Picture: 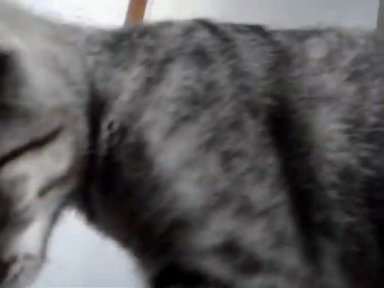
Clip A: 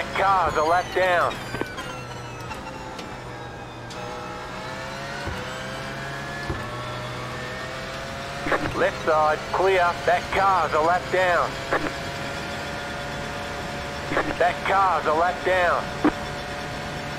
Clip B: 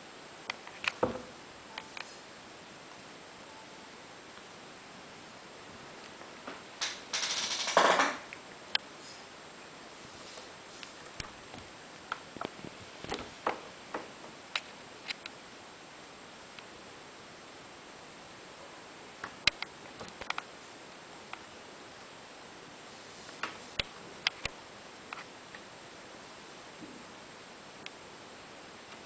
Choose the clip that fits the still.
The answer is B